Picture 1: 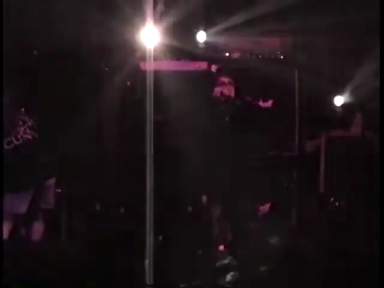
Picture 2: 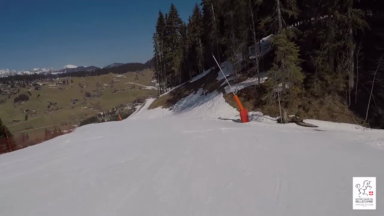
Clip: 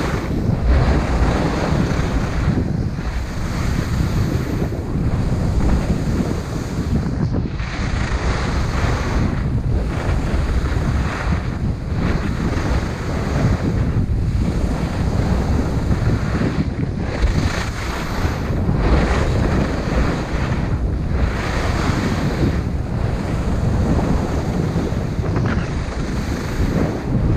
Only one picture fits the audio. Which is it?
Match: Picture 2